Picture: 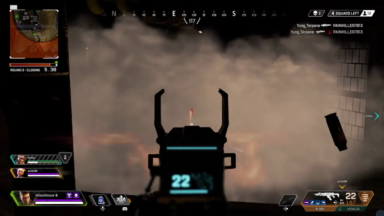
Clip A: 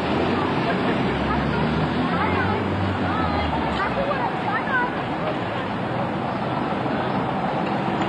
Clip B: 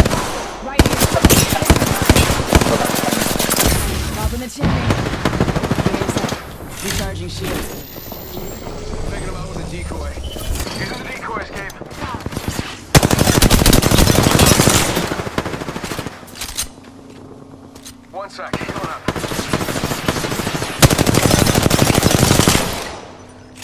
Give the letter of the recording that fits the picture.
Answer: B